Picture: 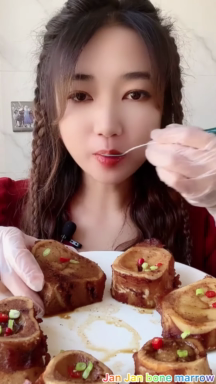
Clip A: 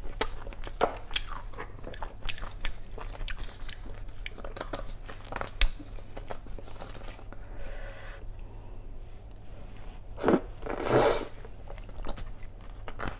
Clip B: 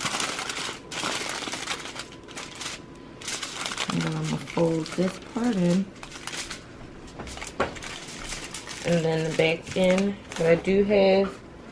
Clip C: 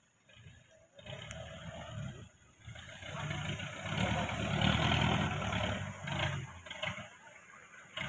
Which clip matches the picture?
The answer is A